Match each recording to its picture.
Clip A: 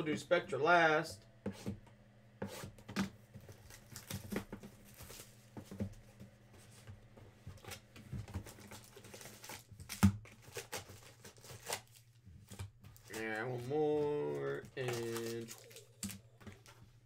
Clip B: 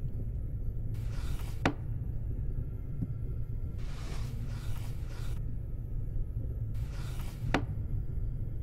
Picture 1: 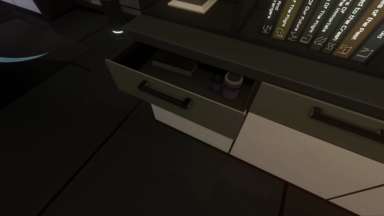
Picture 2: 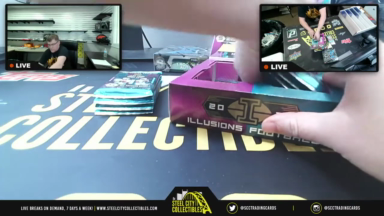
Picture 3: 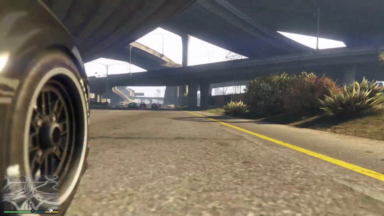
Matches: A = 2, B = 1